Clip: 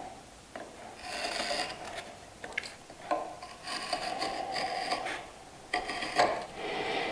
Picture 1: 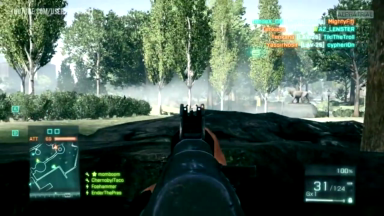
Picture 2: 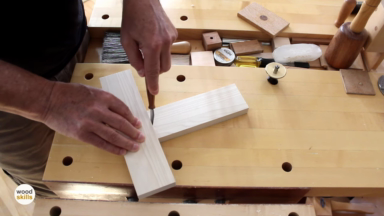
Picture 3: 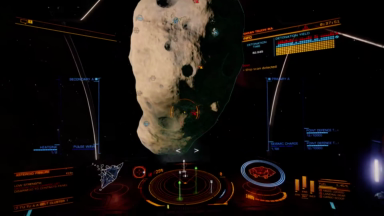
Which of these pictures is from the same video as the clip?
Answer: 2